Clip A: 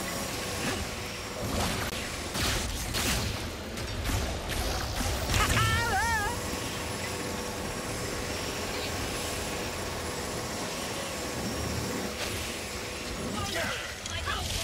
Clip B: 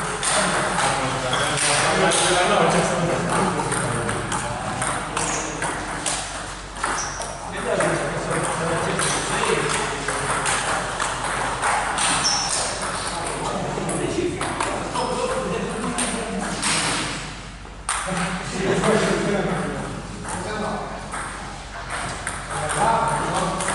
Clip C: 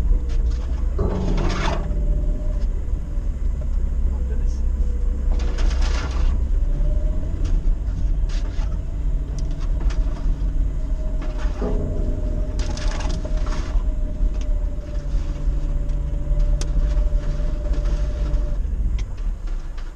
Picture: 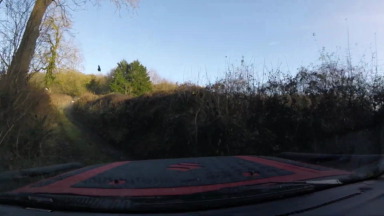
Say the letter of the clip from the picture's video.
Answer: C